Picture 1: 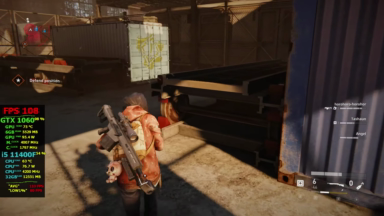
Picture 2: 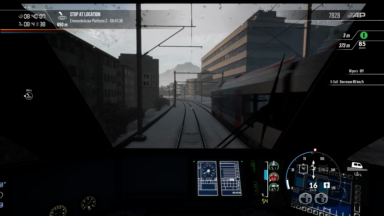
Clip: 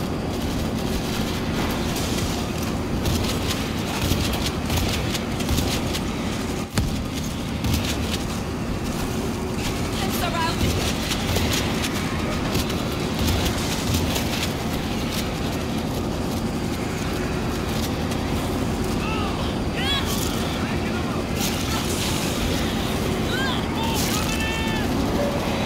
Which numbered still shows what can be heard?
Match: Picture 1